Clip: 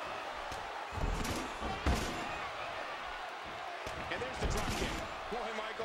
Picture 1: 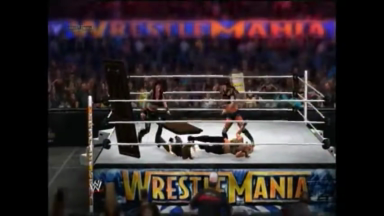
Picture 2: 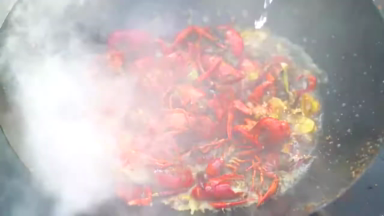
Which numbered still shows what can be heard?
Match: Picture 1